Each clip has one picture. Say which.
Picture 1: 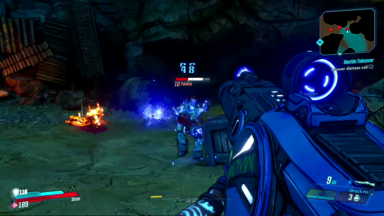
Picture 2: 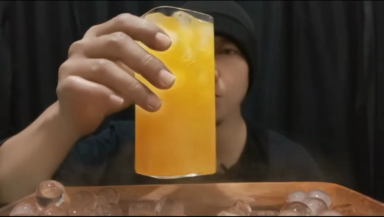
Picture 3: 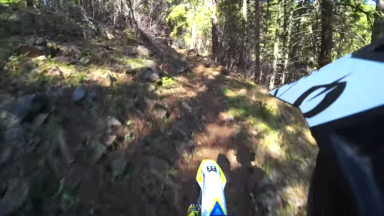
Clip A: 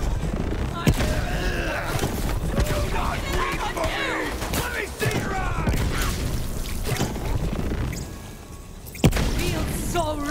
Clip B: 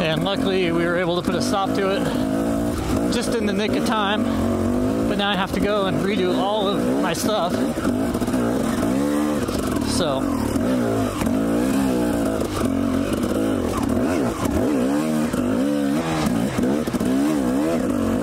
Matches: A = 1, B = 3